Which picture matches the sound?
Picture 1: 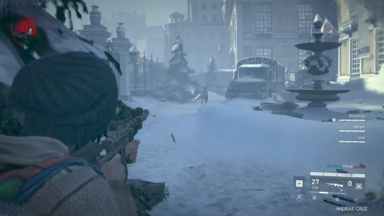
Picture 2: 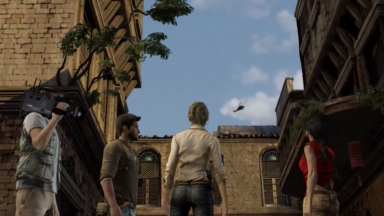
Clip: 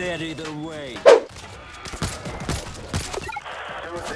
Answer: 1